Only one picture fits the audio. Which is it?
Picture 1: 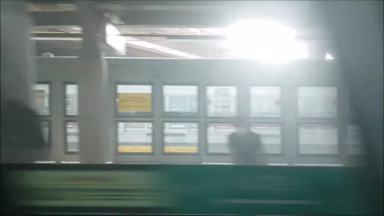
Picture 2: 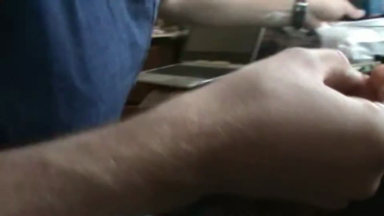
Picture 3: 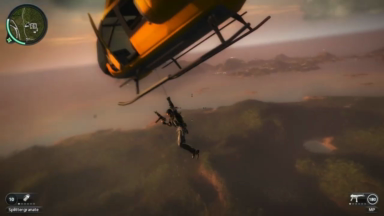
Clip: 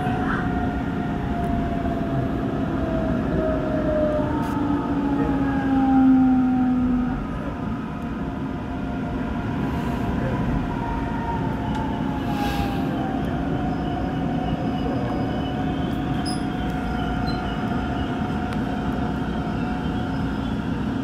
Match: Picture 1